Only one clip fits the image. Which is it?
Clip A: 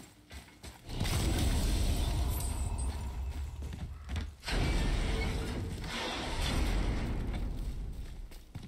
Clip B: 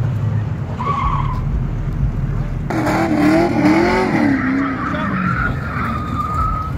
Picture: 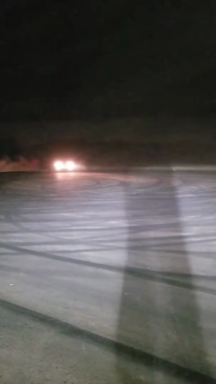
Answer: B